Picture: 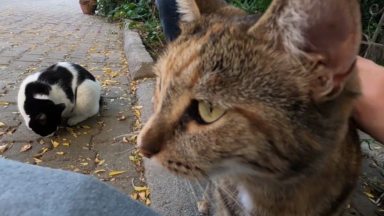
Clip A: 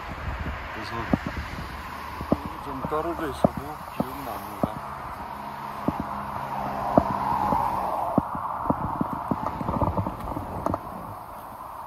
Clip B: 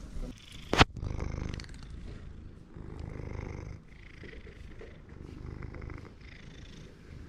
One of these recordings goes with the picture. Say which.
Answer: B